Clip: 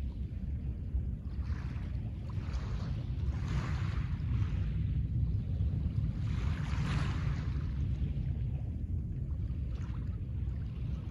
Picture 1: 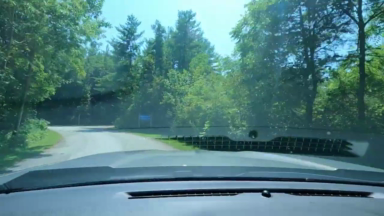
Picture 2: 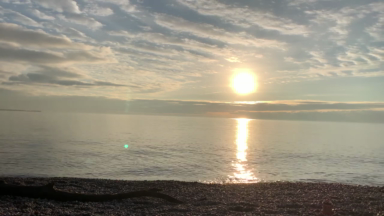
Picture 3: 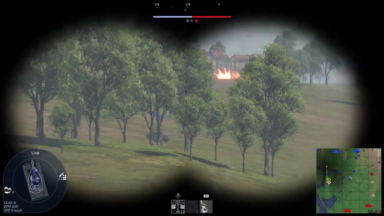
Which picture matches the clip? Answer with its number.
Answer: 2